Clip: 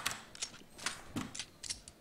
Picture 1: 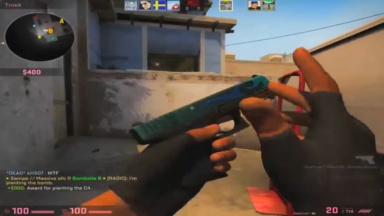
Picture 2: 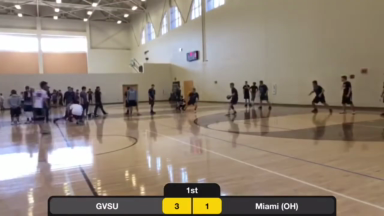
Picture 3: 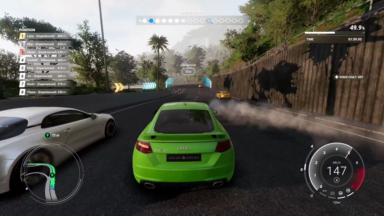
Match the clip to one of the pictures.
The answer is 1